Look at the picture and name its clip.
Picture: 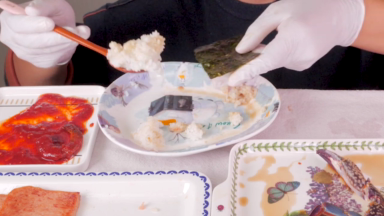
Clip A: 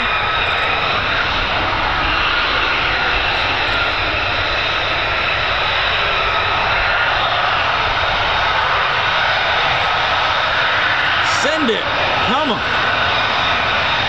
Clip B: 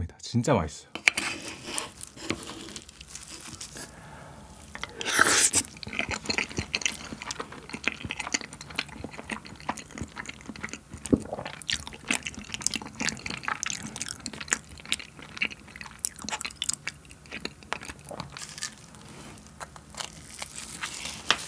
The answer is B